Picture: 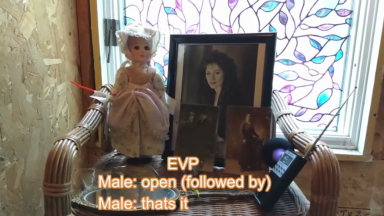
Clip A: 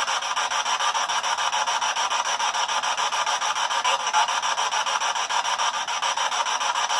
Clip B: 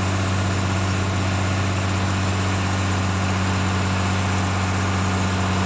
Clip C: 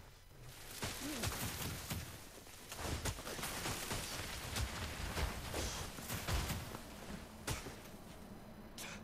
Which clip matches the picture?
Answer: A